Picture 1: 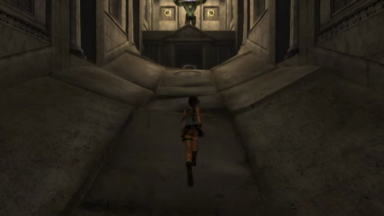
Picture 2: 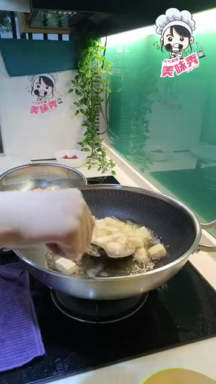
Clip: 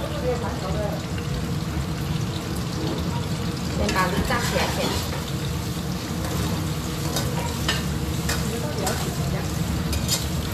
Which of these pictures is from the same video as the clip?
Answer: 2